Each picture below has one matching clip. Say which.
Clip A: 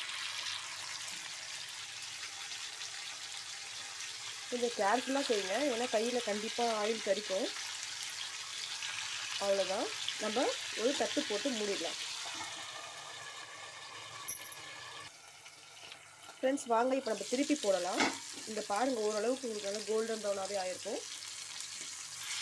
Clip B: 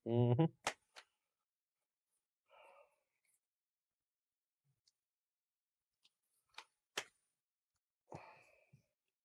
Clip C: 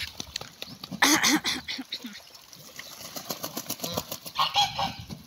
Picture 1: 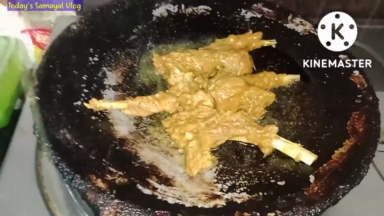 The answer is A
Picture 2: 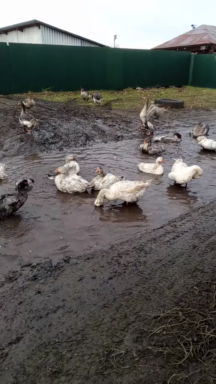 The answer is C